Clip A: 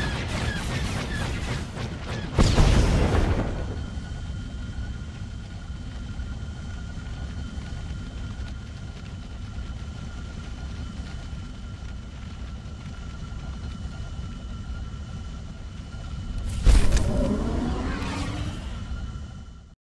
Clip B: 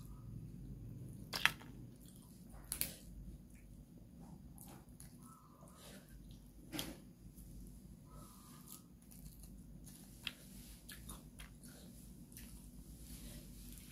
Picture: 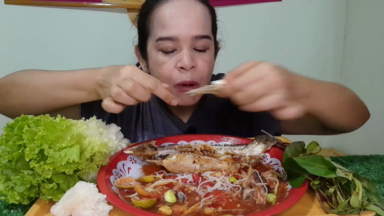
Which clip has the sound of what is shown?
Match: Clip B